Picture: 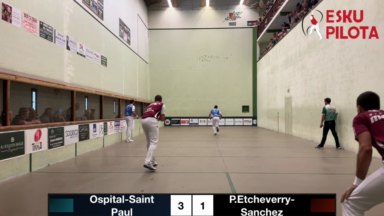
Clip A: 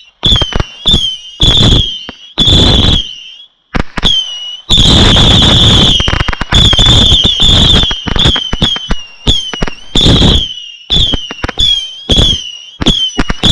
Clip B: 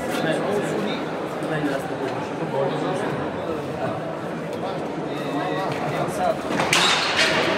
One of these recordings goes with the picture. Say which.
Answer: B